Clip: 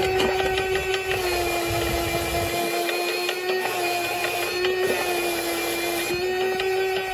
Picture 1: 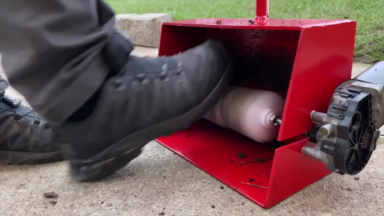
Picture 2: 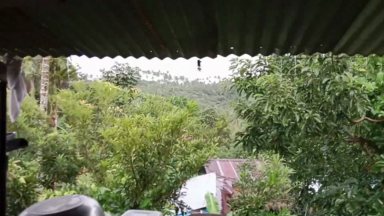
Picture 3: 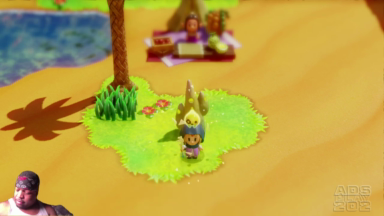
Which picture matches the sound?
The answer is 1